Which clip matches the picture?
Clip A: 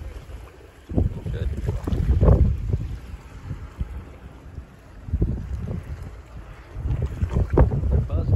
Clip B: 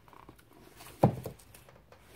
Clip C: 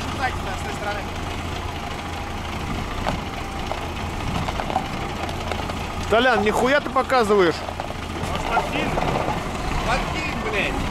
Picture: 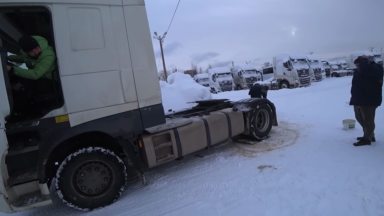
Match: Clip C